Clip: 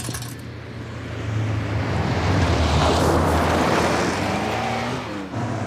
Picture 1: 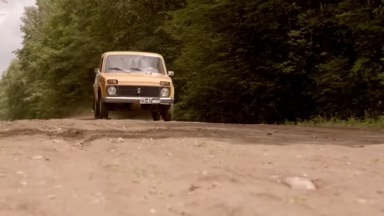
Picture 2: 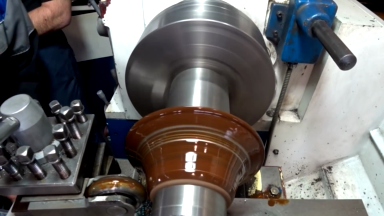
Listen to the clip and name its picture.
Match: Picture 1